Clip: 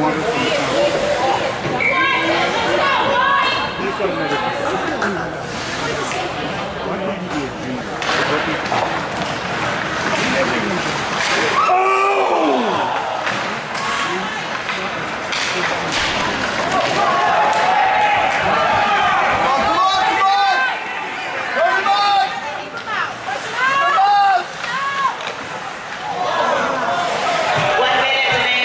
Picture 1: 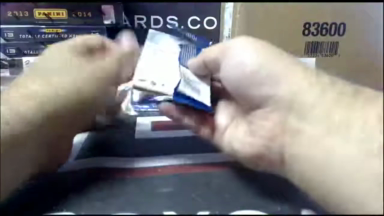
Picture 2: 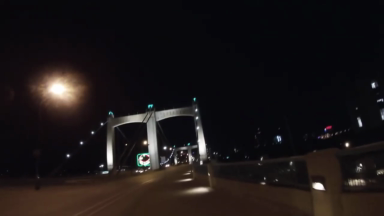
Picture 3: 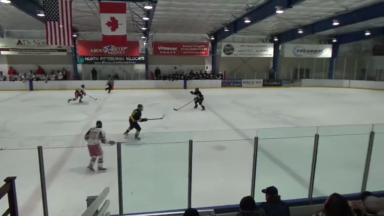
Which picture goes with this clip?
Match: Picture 3